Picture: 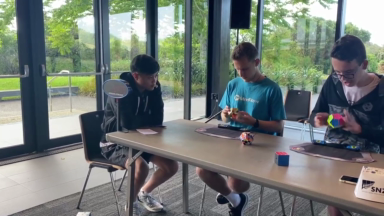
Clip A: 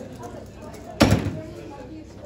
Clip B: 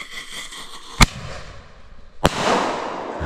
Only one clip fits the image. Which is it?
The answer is A